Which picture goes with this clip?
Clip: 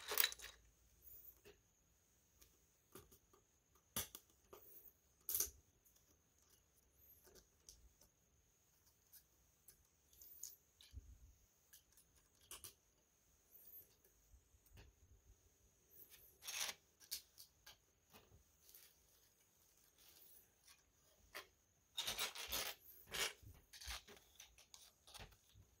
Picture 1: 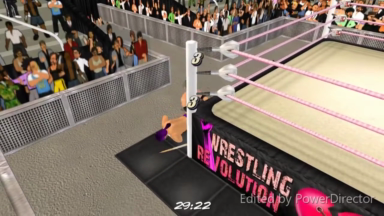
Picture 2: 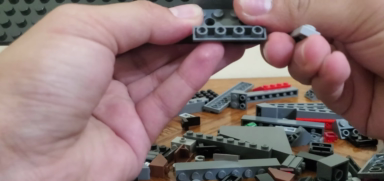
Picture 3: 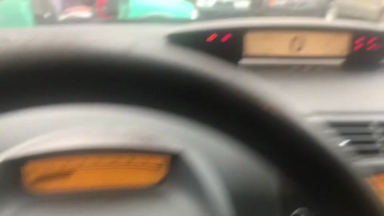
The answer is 2